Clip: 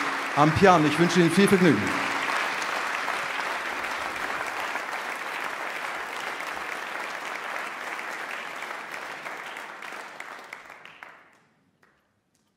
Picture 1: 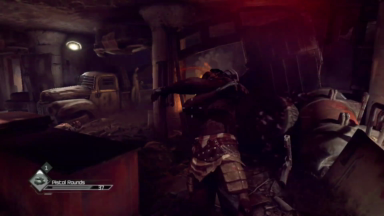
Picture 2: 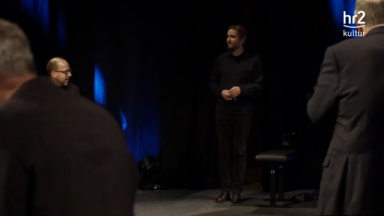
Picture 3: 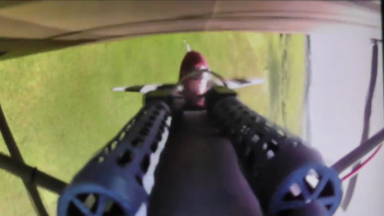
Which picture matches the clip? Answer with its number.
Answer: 2